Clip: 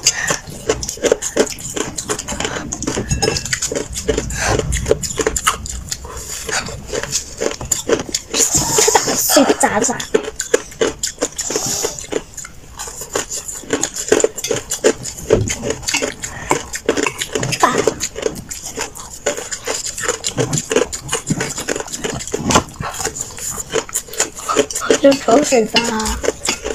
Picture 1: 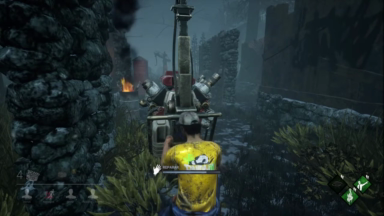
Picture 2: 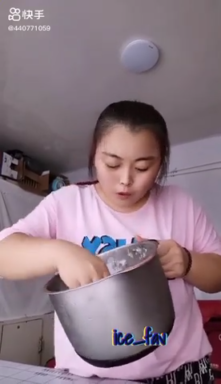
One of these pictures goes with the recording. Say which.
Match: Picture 2